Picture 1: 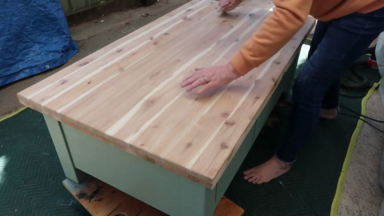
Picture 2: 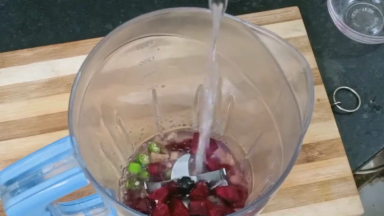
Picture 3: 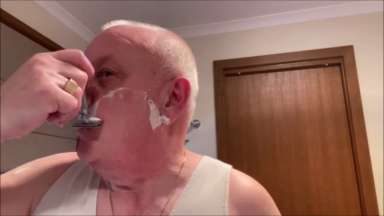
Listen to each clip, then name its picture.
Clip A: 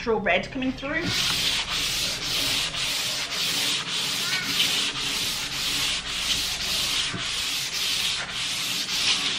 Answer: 1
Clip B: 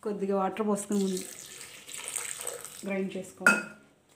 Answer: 2